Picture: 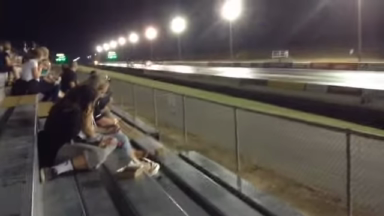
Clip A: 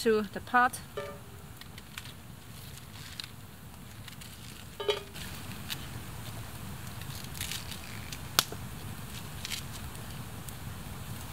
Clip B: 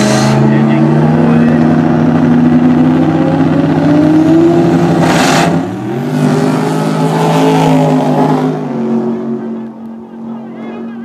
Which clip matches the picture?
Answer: B